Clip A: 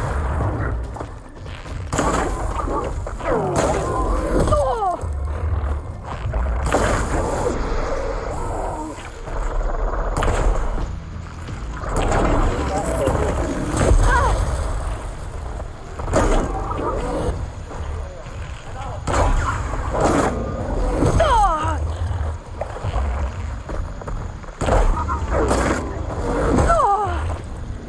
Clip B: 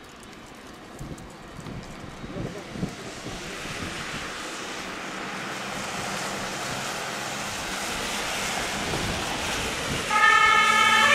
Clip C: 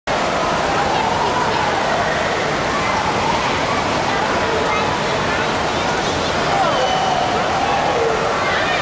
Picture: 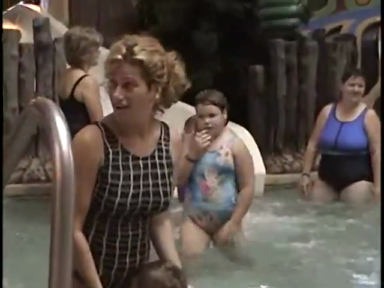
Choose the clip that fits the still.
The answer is C